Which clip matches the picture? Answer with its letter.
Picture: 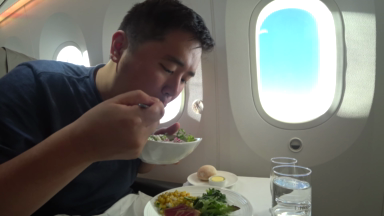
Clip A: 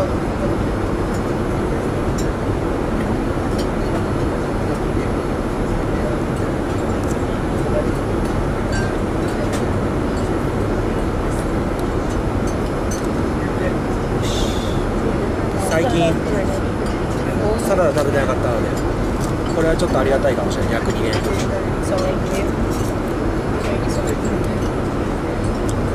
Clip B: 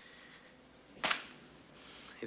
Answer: A